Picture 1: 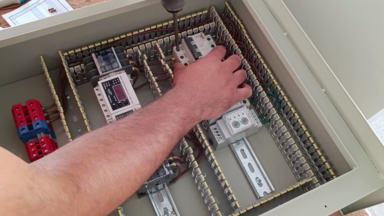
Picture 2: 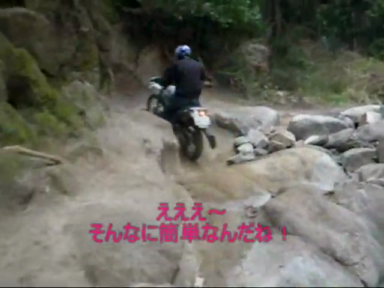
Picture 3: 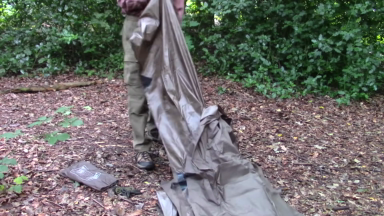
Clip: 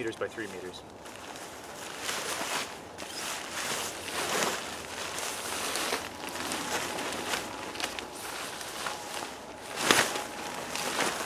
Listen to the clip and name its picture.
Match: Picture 3